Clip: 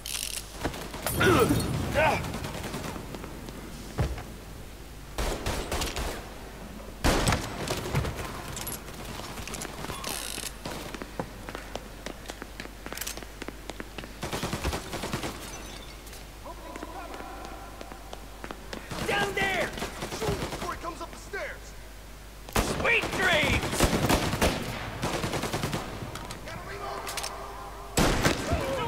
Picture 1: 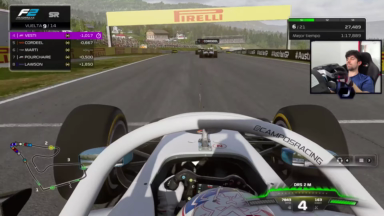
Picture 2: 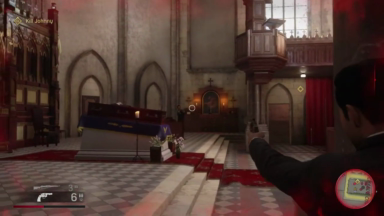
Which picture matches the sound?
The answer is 2